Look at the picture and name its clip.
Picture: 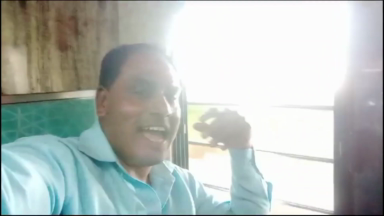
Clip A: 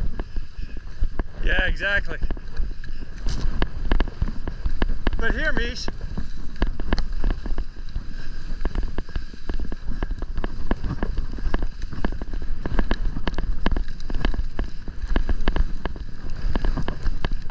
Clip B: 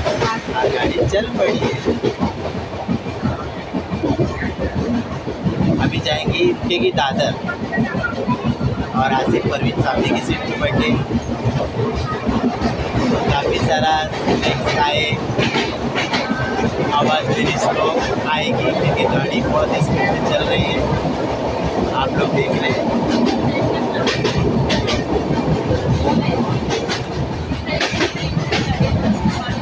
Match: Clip B